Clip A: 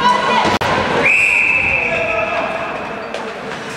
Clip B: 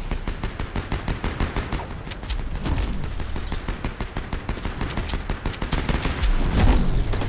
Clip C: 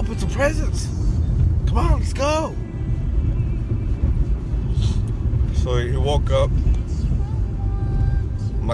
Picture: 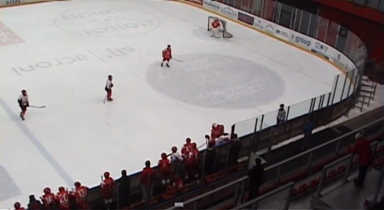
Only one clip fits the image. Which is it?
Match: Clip A